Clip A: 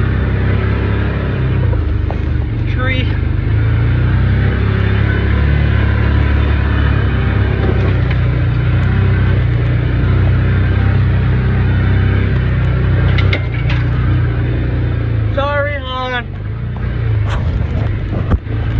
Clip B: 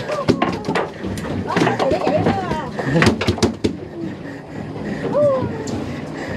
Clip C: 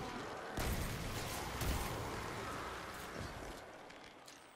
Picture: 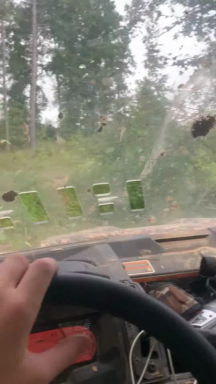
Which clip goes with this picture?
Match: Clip A